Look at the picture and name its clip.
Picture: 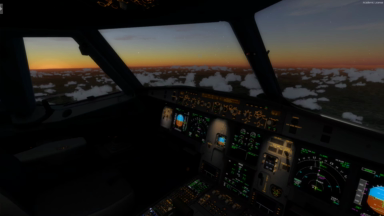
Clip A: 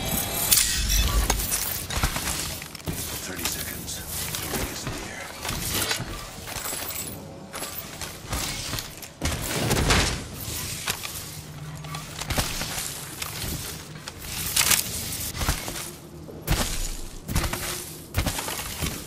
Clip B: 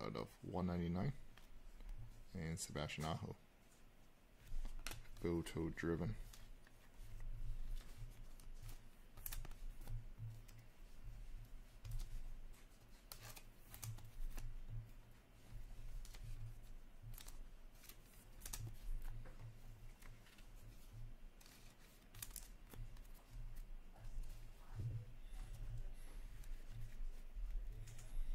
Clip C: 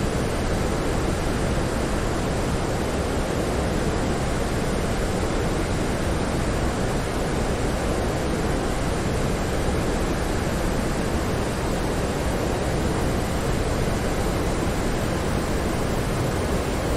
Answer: C